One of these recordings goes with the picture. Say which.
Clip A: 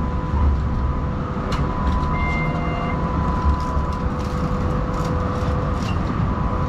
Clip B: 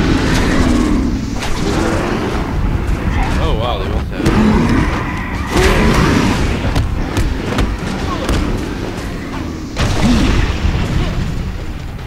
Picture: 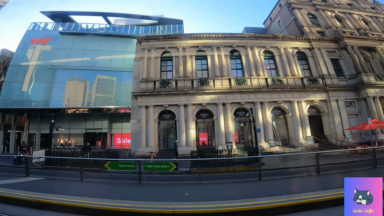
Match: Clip A